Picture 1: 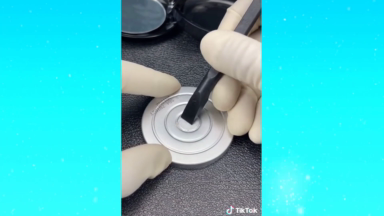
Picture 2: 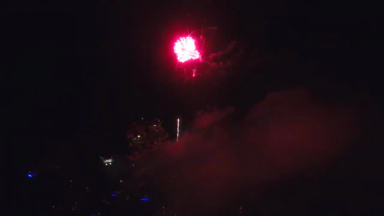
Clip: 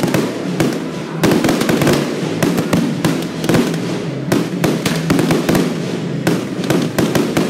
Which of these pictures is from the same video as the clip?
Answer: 2